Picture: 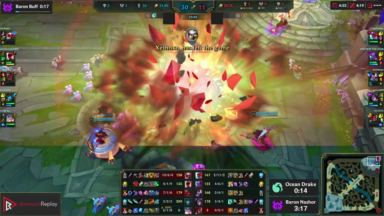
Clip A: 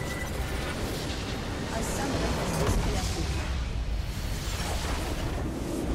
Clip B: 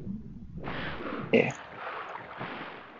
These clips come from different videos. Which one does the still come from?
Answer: A